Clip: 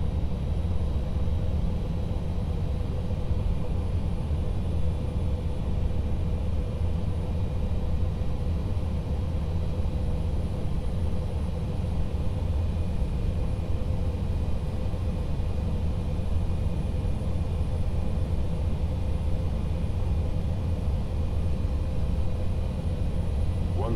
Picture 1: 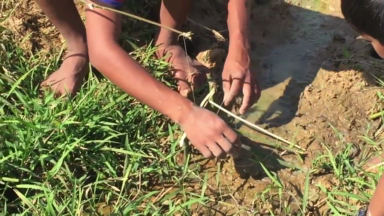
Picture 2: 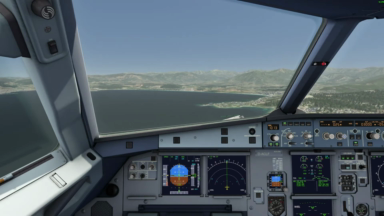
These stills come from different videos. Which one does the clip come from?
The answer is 2